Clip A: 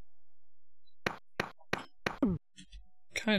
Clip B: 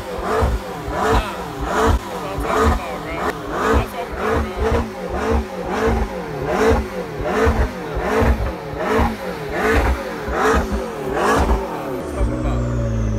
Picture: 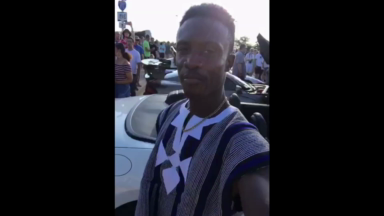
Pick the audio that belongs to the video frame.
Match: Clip B